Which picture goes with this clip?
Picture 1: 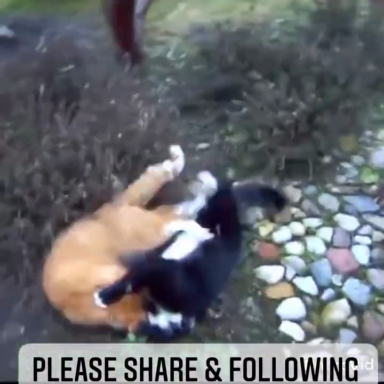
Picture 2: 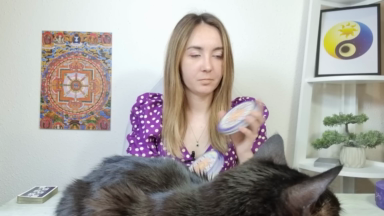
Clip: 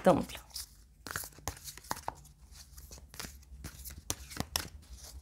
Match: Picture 2